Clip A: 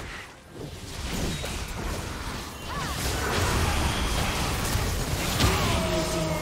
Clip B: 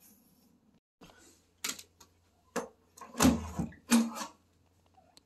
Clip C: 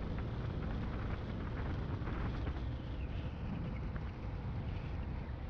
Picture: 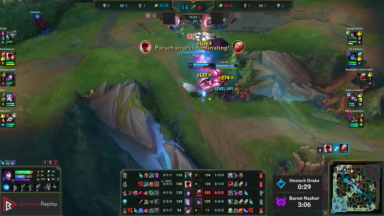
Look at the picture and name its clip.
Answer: A